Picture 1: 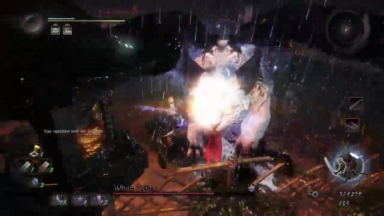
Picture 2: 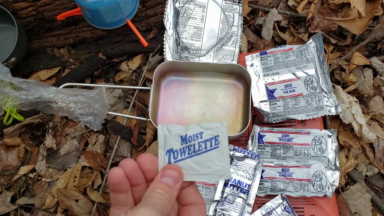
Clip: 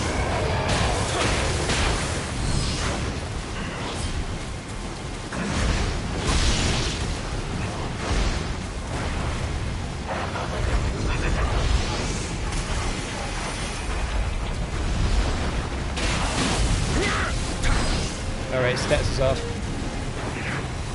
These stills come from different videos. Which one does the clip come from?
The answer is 1